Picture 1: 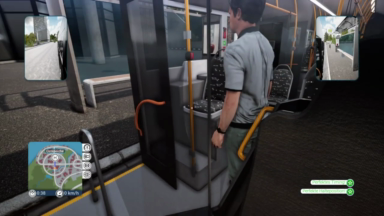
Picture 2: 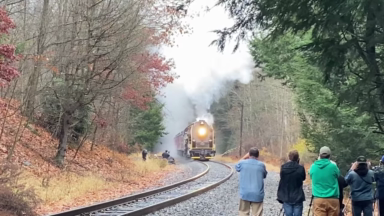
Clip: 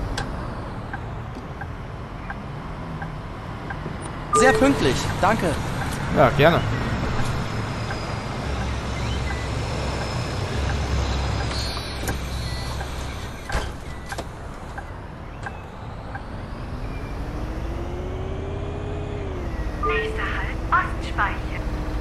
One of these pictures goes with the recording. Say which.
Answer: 1